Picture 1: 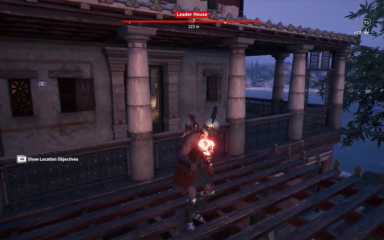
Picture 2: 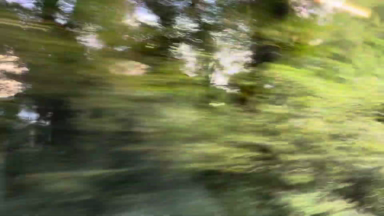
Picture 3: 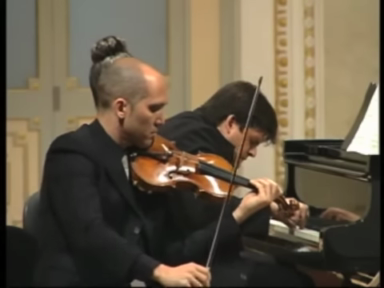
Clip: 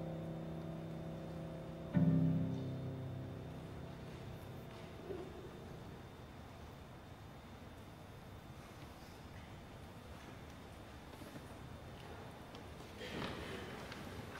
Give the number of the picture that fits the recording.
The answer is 3